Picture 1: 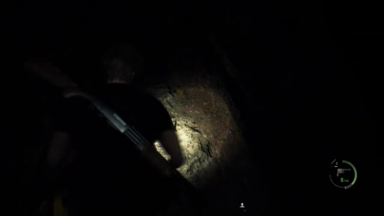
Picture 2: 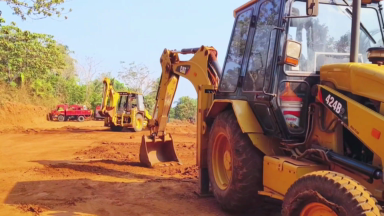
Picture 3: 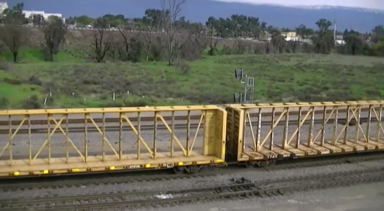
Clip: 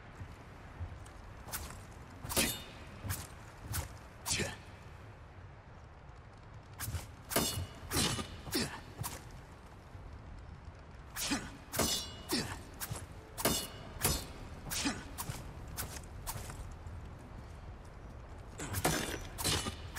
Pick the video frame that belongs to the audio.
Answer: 1